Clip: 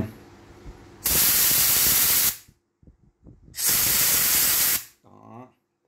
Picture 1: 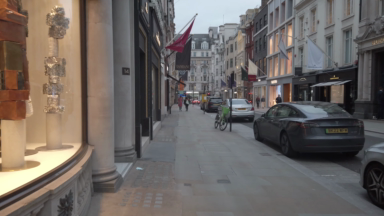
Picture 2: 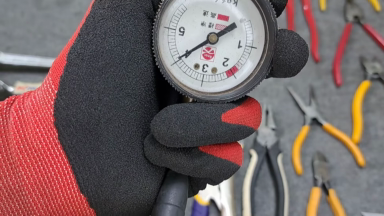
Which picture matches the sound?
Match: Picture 2